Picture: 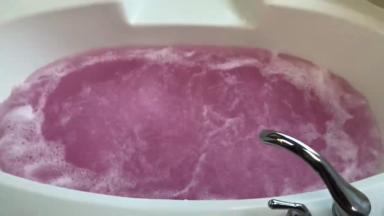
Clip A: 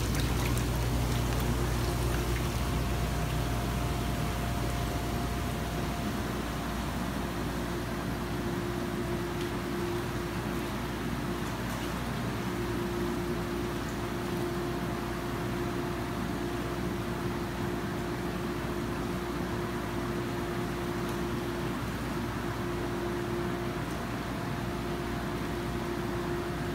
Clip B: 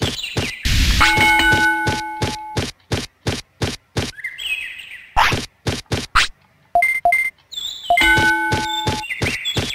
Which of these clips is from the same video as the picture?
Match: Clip A